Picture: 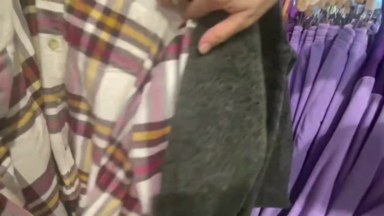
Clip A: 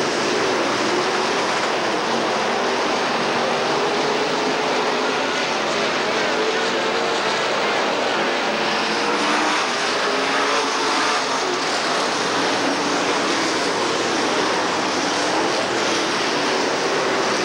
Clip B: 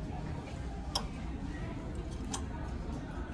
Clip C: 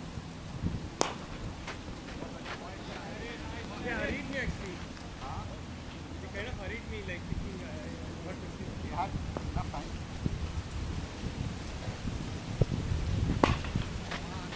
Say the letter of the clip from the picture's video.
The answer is B